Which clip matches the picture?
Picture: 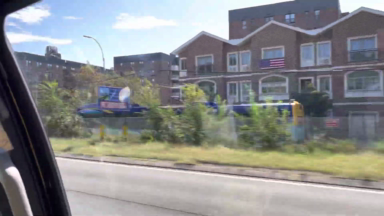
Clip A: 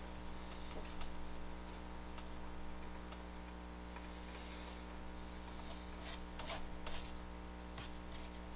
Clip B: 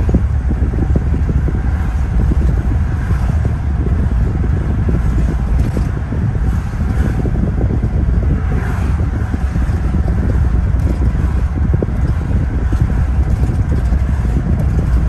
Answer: B